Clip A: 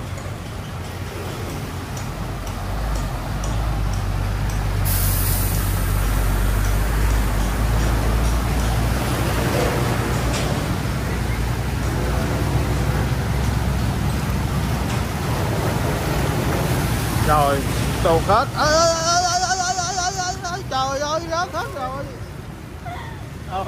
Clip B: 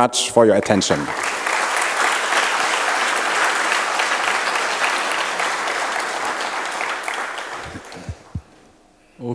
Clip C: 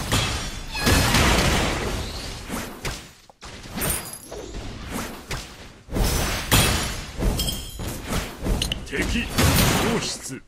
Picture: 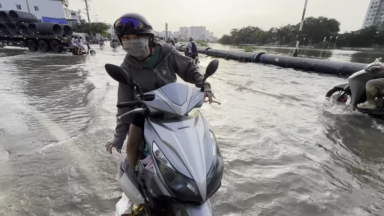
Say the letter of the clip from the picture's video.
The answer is A